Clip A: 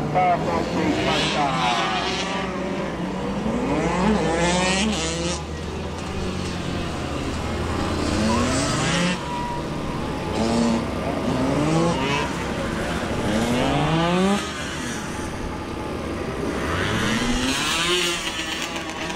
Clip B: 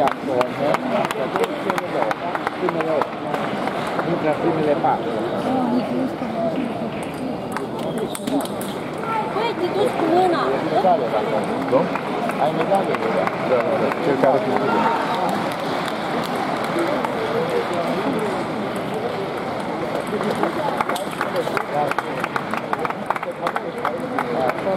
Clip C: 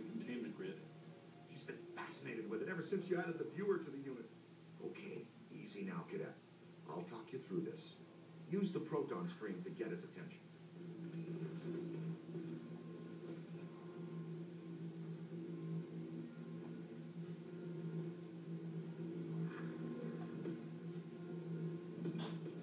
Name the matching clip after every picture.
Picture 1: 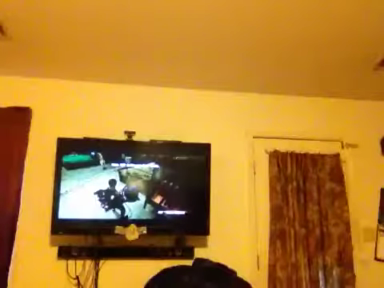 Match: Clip C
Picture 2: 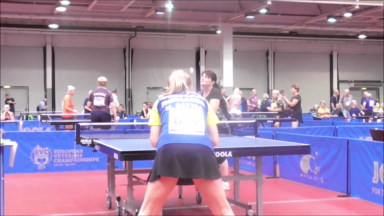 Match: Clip B